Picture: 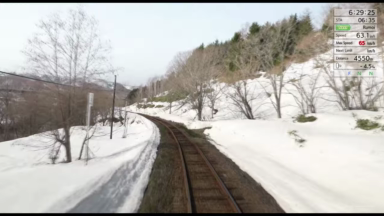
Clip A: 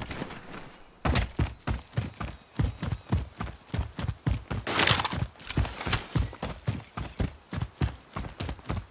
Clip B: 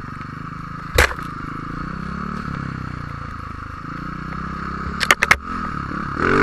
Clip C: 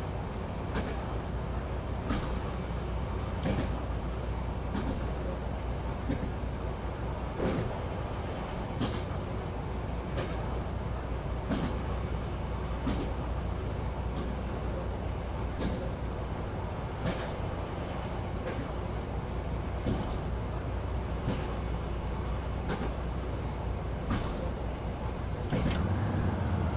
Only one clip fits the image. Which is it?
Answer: C